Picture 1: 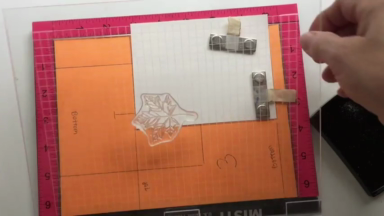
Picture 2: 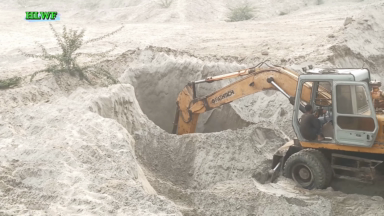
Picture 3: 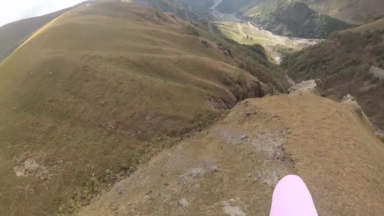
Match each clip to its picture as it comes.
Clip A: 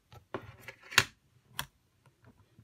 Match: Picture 1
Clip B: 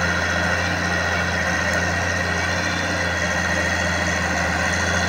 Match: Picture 2